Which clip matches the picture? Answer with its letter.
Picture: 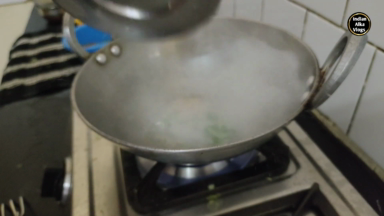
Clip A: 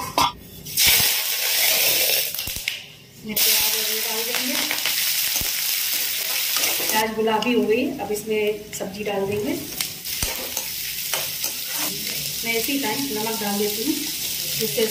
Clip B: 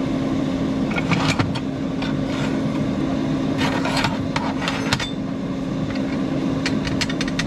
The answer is A